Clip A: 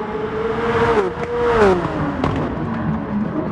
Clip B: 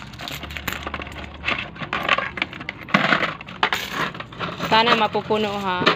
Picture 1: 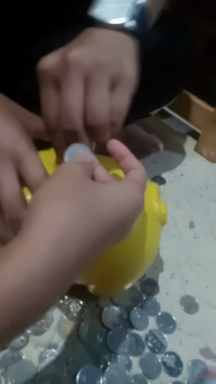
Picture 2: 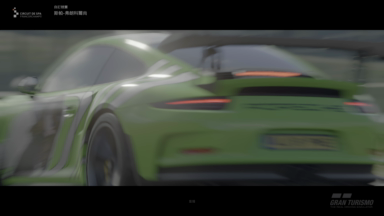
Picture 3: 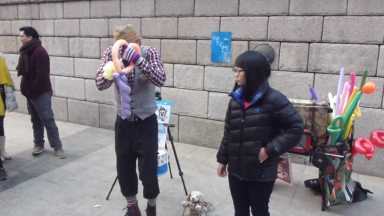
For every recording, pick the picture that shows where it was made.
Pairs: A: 2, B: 1